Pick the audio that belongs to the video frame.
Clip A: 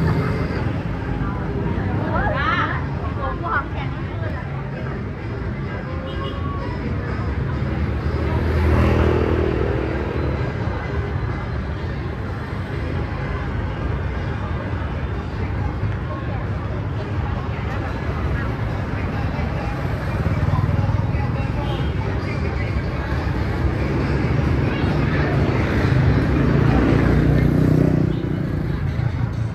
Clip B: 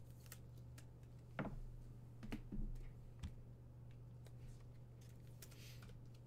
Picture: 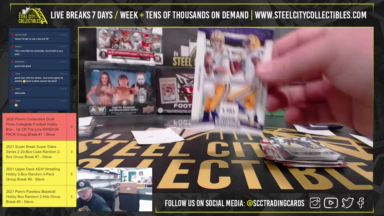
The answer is B